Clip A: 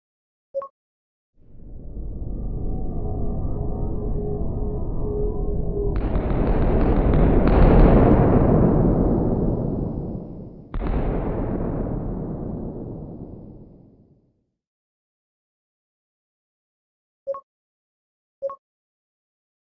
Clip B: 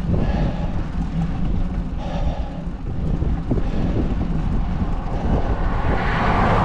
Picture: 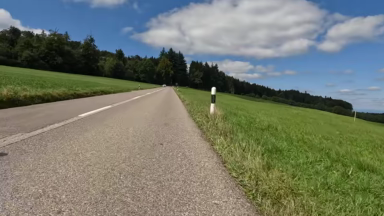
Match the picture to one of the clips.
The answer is B